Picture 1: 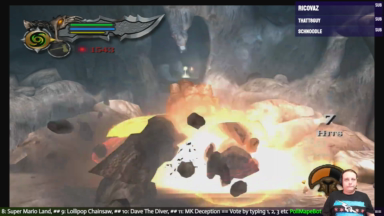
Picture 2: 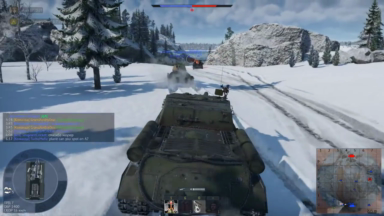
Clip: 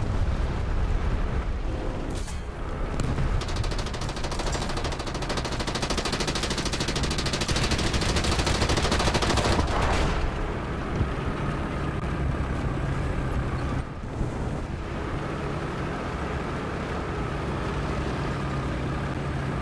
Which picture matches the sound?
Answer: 2